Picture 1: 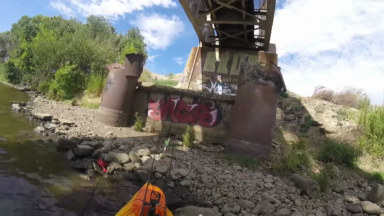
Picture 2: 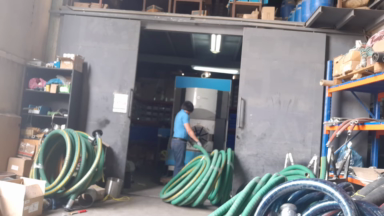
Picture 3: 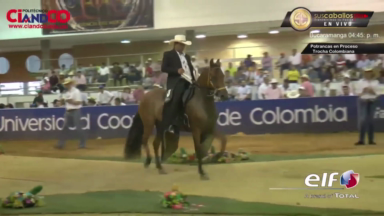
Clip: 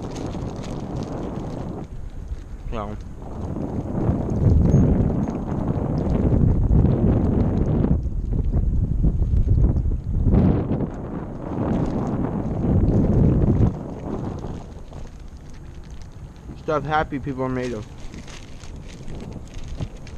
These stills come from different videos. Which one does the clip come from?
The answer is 1